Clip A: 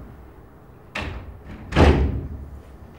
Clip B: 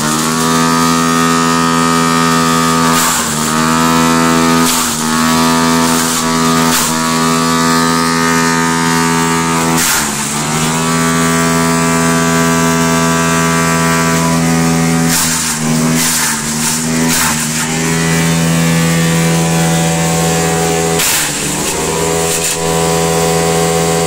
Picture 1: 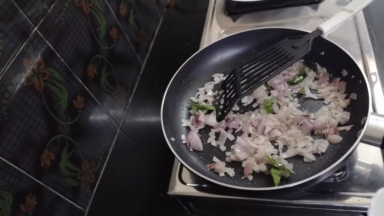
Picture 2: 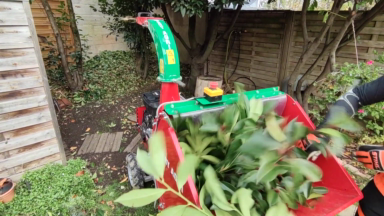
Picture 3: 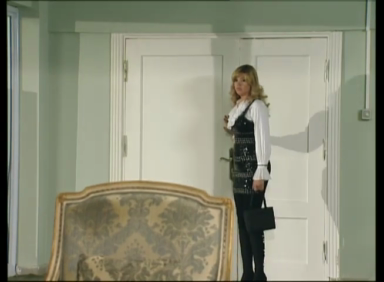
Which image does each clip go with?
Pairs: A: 3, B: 2